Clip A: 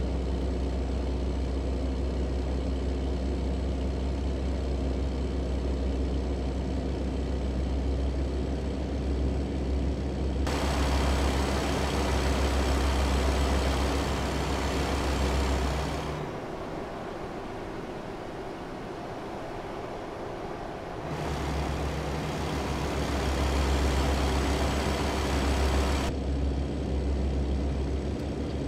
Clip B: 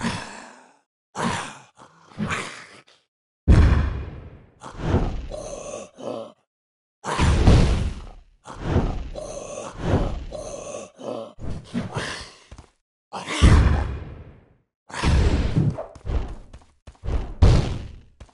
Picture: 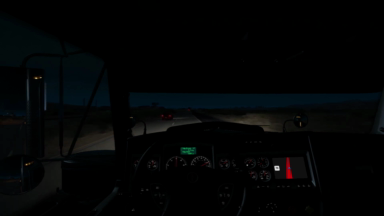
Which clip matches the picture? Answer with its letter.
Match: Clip A